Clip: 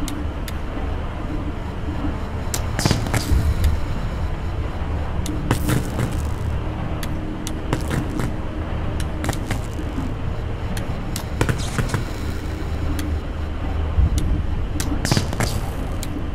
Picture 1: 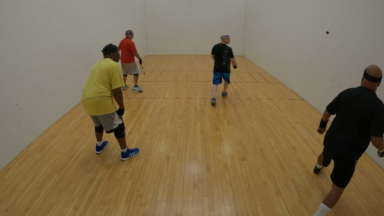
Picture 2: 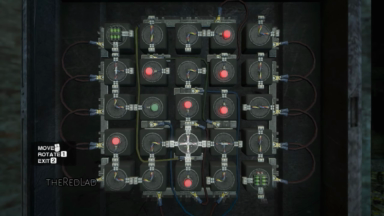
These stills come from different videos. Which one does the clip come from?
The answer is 2